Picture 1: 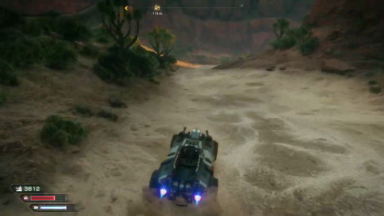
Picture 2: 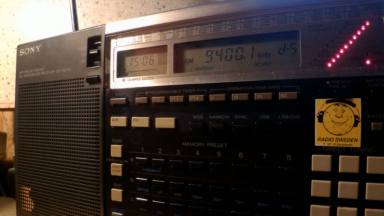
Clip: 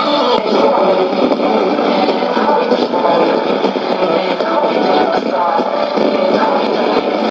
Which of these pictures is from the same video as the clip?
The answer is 2